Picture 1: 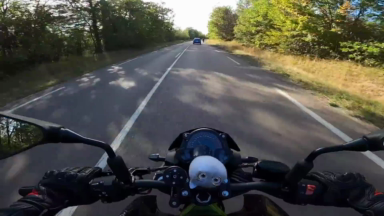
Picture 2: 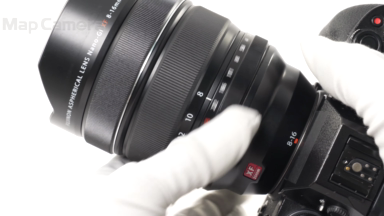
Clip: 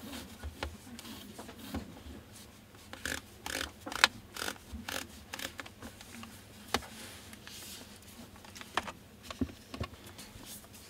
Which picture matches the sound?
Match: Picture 2